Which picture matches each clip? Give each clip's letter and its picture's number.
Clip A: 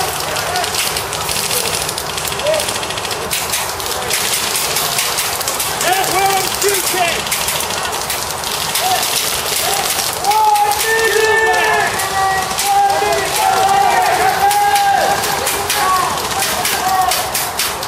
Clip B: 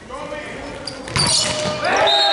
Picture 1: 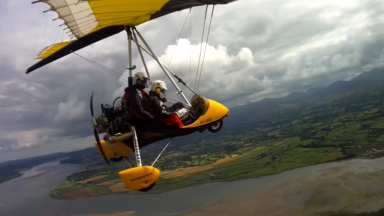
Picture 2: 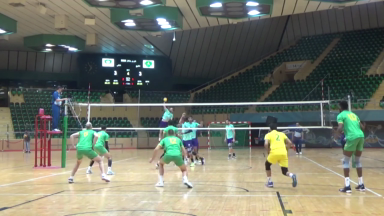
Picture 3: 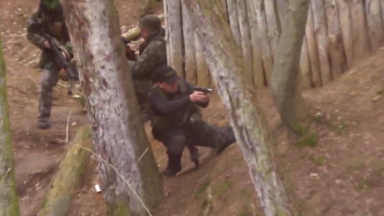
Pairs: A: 3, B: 2